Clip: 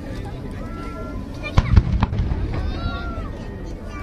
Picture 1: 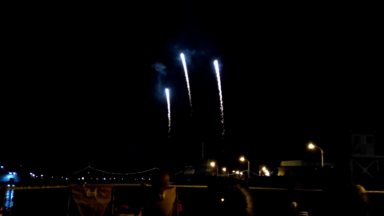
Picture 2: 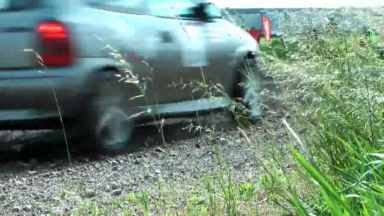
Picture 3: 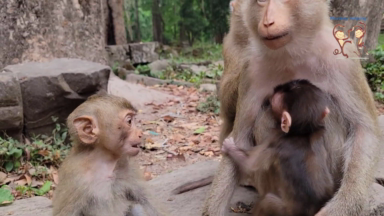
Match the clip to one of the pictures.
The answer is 1